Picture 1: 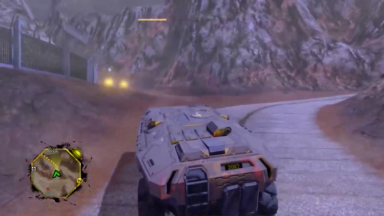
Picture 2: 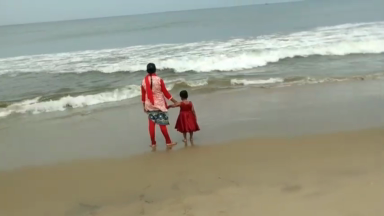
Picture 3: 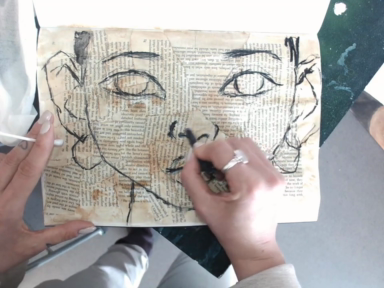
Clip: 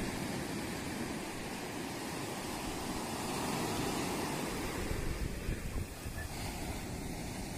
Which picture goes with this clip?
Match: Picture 2